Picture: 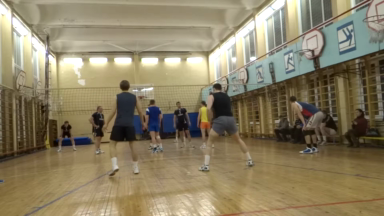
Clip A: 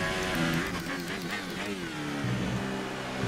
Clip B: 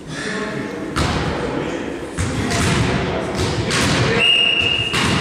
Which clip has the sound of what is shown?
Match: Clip B